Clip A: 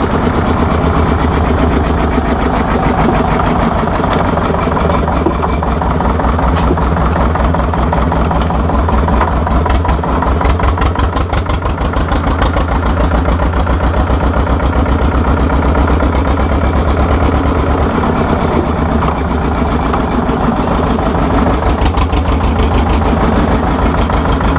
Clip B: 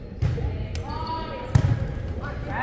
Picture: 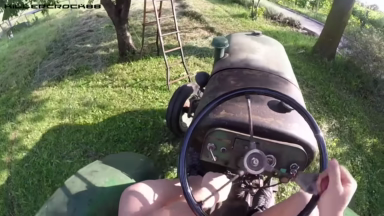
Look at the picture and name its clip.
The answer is A